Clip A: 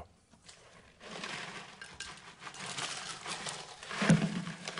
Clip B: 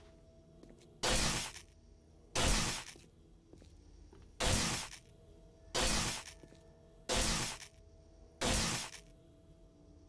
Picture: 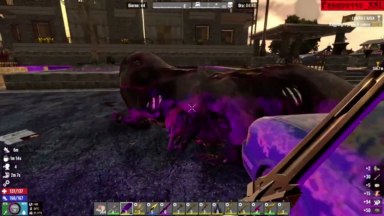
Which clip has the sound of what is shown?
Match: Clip B